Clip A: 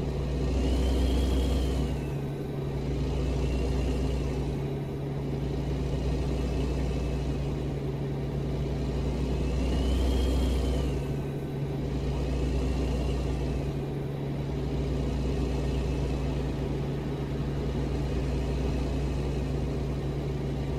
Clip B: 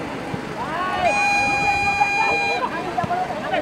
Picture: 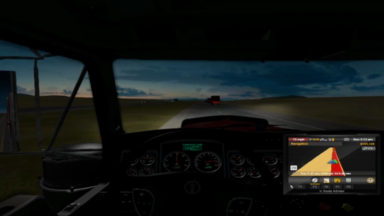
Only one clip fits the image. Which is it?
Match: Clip A